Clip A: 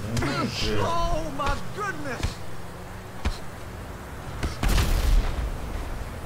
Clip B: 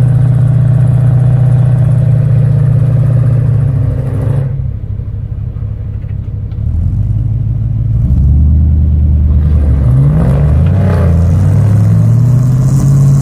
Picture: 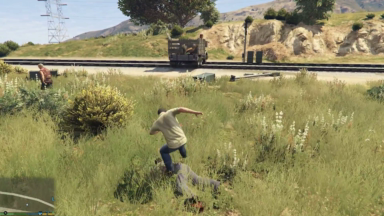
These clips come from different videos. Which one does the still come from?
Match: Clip A